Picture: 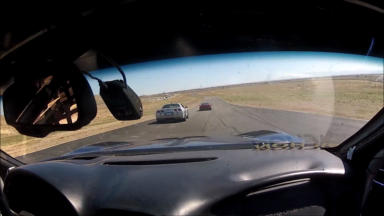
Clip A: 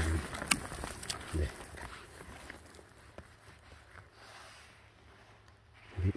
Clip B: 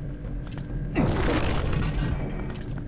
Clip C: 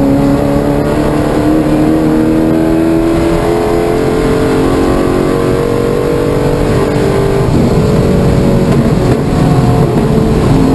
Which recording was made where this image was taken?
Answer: C